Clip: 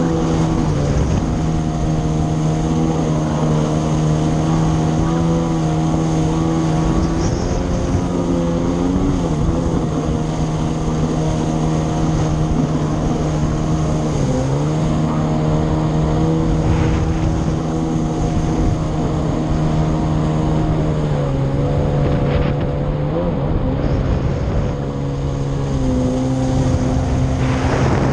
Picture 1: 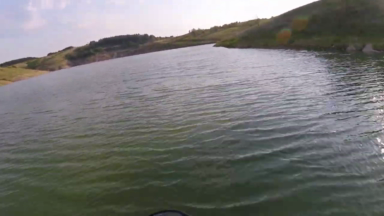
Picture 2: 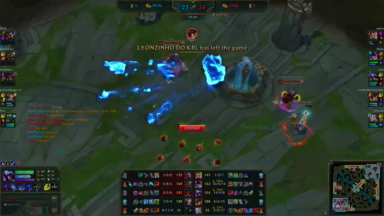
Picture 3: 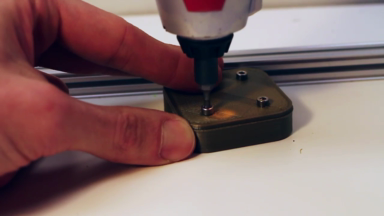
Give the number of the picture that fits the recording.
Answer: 1